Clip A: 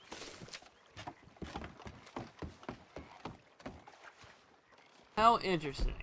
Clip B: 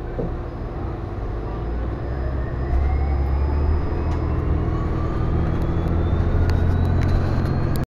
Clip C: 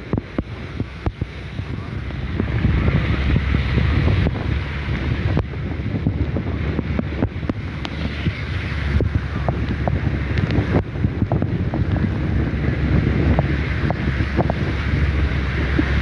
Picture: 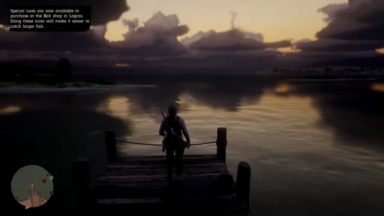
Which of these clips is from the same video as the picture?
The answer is A